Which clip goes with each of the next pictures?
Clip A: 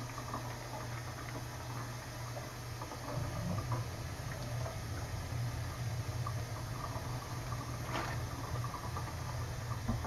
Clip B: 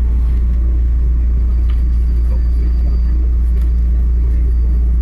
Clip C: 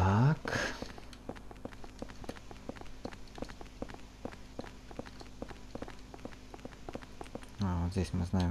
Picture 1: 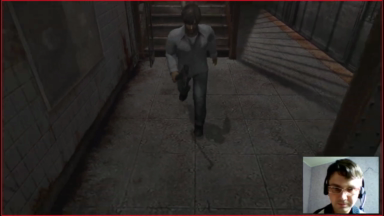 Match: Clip C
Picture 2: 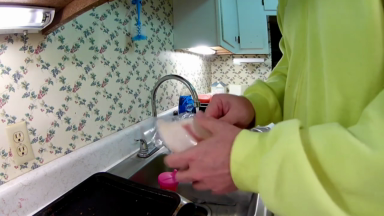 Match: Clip A